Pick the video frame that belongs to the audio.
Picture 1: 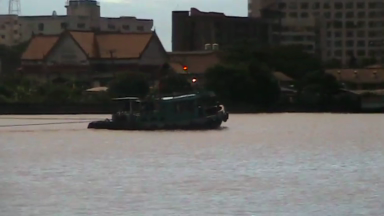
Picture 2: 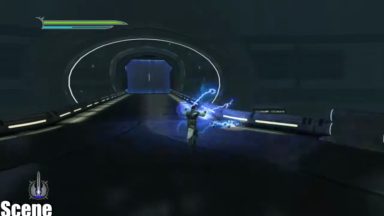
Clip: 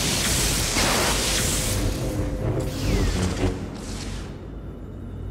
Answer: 2